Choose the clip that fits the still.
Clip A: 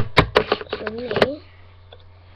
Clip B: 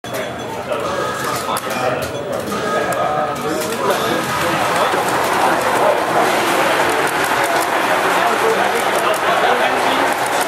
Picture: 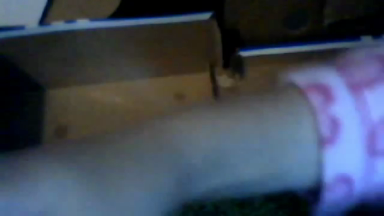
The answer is A